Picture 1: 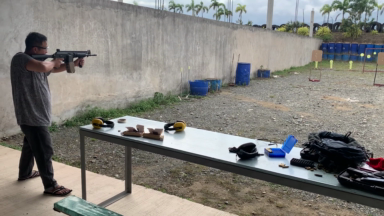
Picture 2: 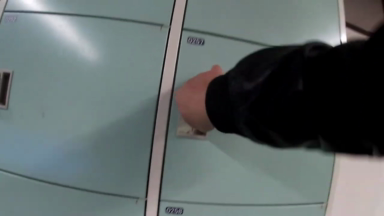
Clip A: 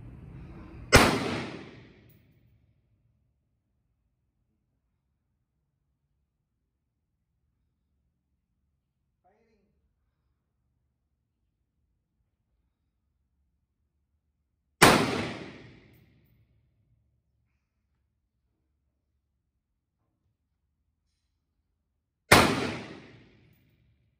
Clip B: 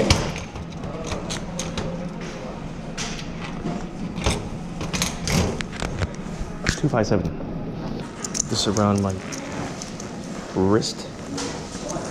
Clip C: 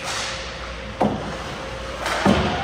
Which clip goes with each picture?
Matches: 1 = A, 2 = B